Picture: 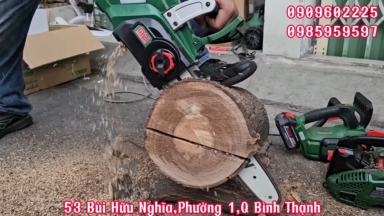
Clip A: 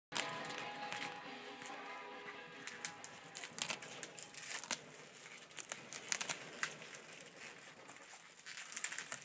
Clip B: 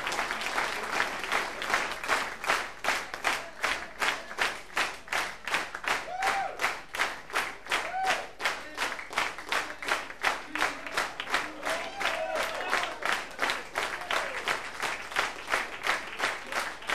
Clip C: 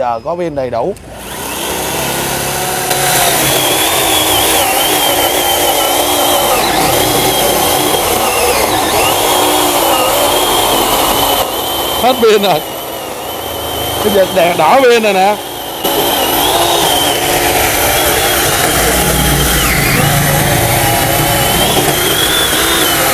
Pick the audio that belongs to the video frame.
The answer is C